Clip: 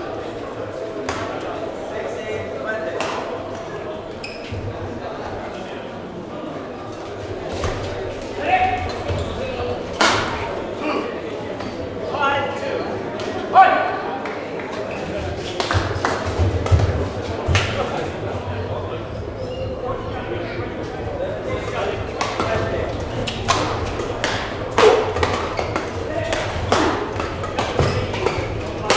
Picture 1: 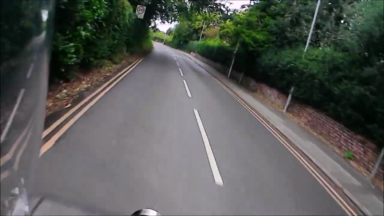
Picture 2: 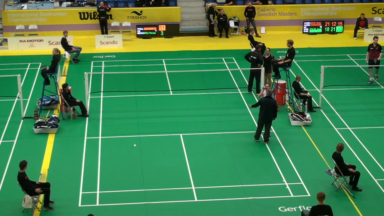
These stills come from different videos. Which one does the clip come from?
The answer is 2